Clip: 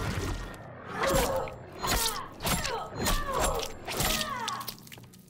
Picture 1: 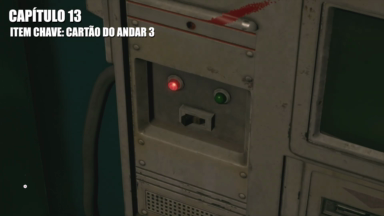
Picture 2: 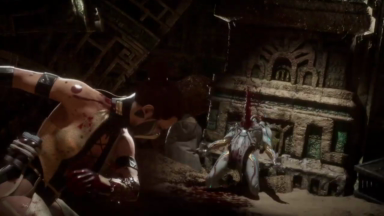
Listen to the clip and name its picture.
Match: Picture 2